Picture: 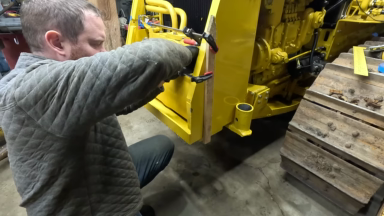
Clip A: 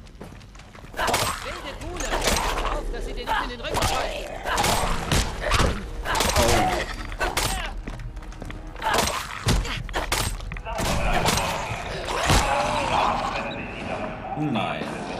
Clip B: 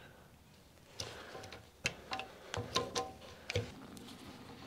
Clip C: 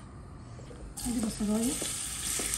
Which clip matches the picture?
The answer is B